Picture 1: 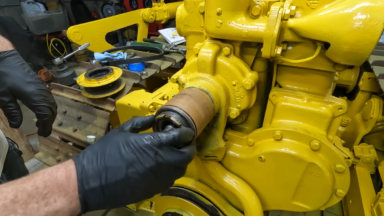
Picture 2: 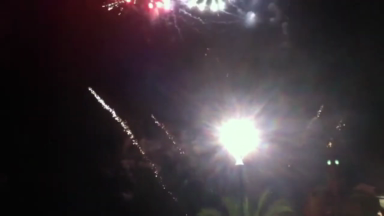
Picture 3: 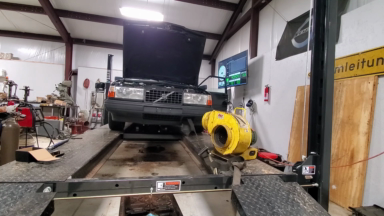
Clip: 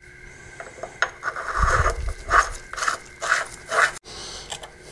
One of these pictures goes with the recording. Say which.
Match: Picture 1